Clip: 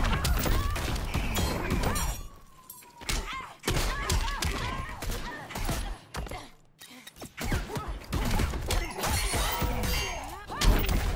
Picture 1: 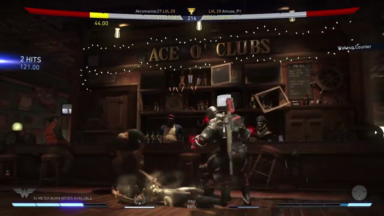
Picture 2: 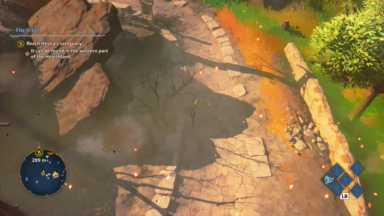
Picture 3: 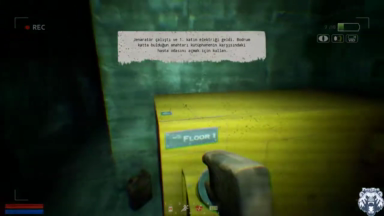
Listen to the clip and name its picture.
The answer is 1